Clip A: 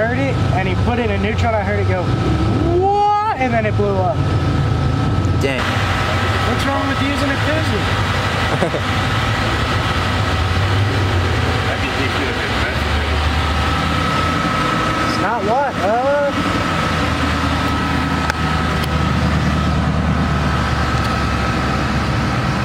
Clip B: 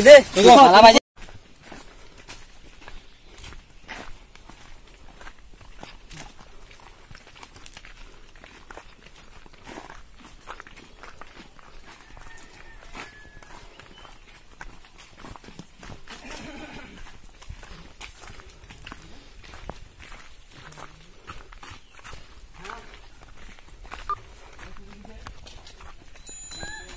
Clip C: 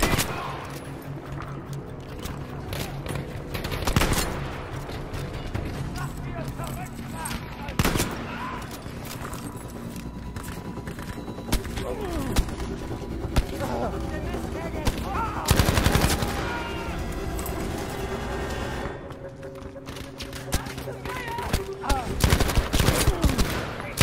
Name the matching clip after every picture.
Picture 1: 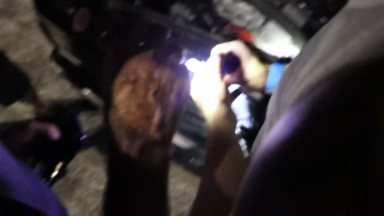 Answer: A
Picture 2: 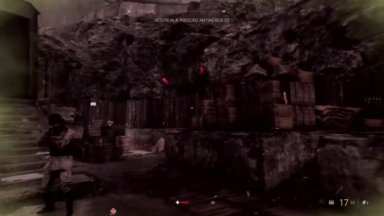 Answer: C